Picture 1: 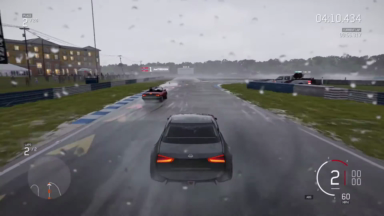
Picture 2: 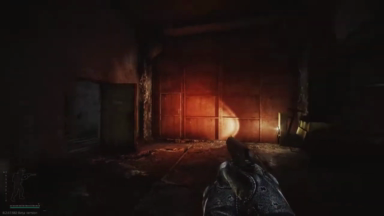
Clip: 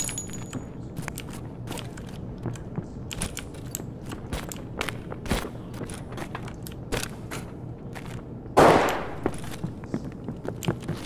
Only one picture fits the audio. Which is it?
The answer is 2